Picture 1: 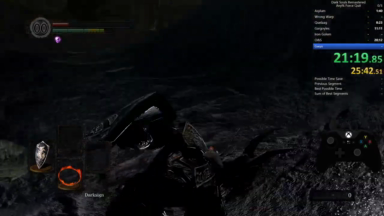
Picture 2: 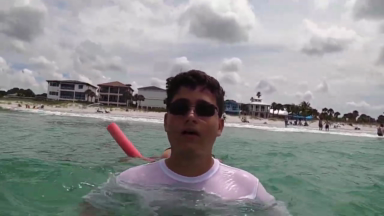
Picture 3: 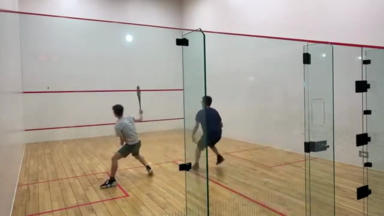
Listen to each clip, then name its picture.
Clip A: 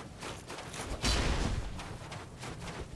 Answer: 1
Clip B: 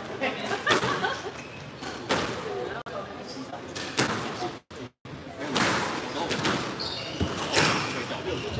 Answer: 3